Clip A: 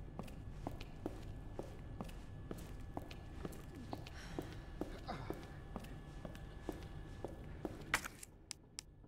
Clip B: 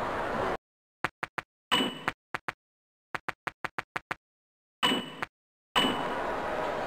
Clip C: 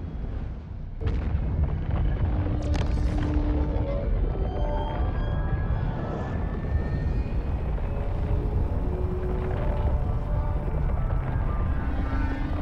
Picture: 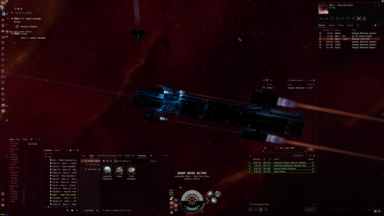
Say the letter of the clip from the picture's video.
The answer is C